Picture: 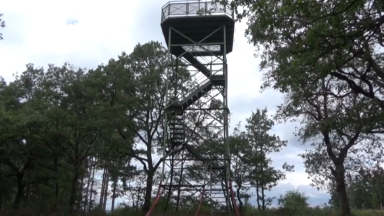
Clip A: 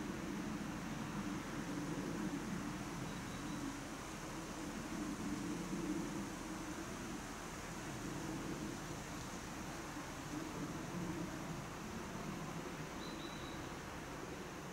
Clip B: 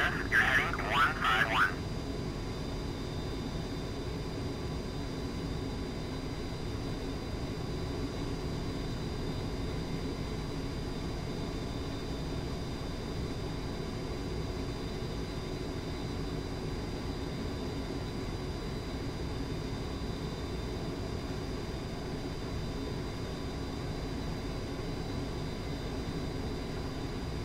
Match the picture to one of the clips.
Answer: A